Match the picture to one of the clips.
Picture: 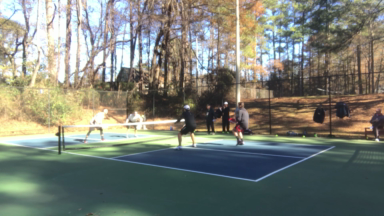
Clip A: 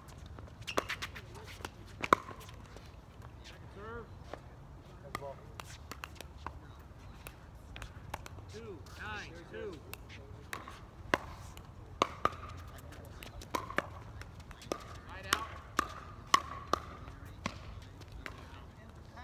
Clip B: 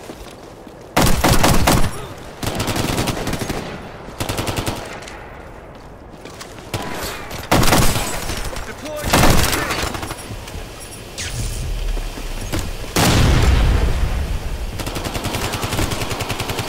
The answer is A